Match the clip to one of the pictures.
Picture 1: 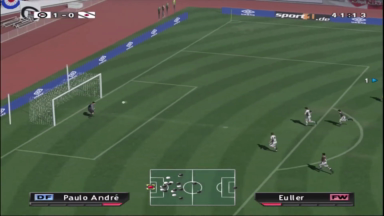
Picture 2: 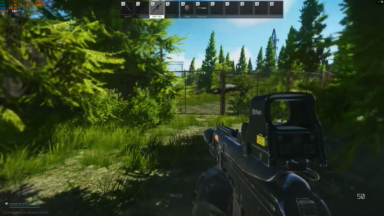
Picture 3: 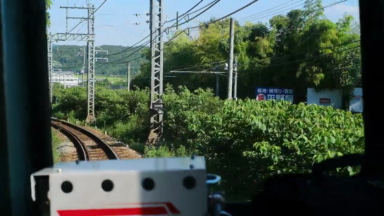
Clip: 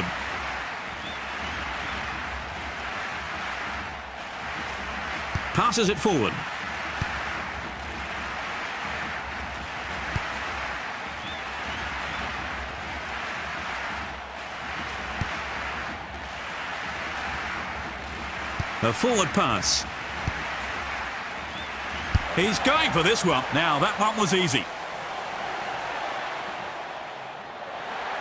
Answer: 1